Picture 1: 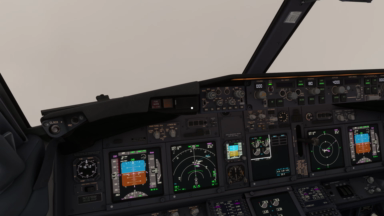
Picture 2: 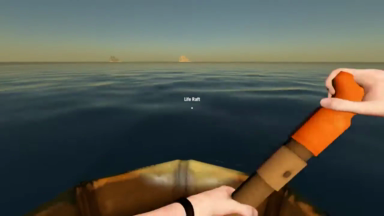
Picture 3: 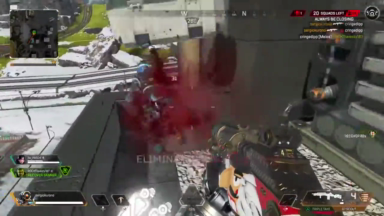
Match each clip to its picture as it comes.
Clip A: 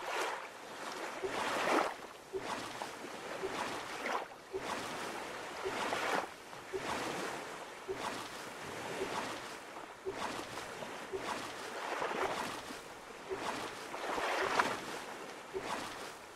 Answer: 2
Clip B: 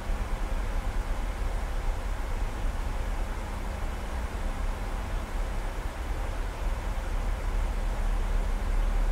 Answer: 1